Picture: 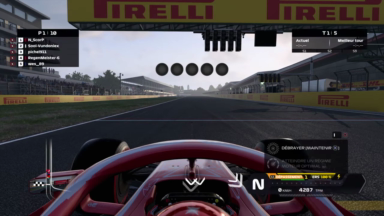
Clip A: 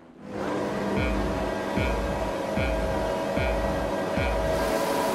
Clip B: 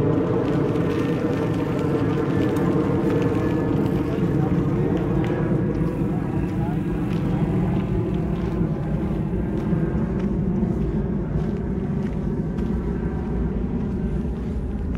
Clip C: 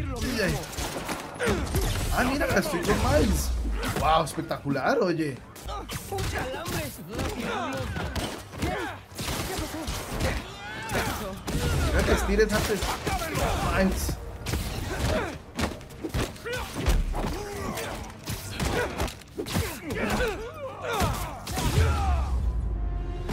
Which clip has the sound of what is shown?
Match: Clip A